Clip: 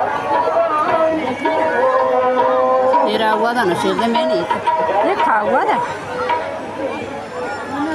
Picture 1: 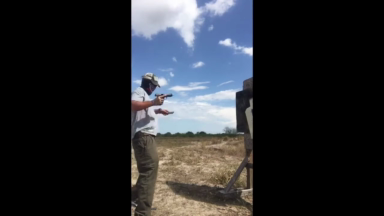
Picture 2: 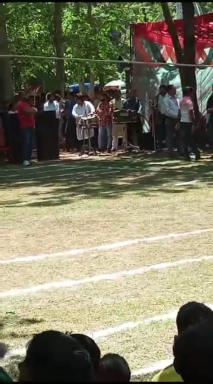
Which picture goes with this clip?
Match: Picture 2